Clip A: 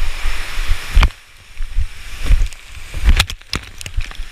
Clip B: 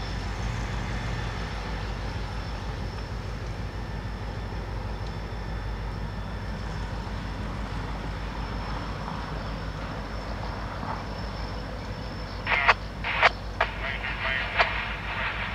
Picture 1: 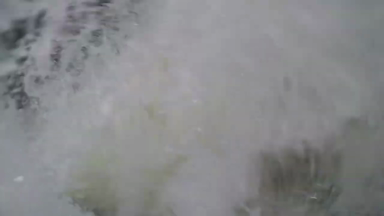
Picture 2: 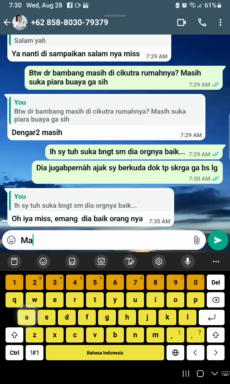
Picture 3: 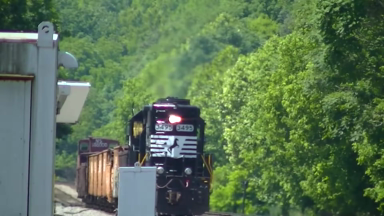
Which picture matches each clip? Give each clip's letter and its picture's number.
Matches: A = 1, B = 3